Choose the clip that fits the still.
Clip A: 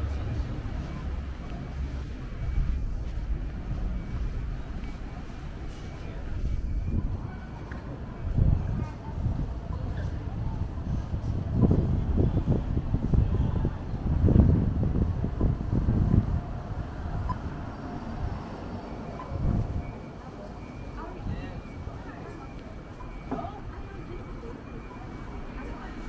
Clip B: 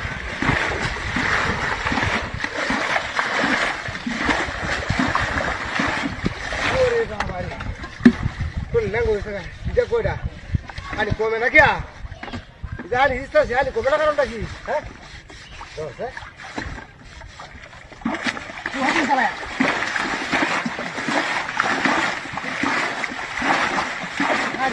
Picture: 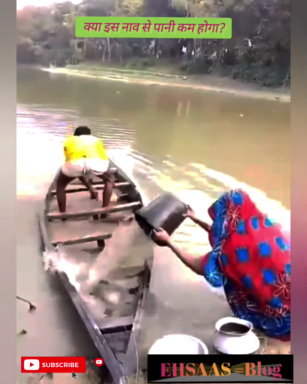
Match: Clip B